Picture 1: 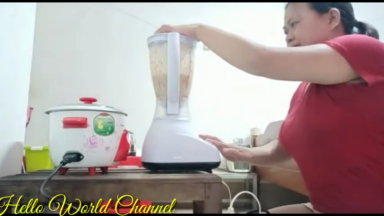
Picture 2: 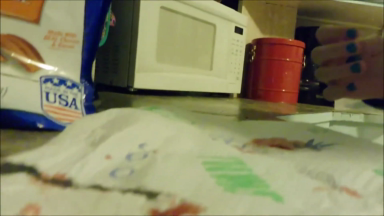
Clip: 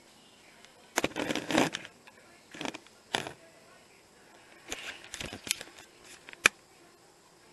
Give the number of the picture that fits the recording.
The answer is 2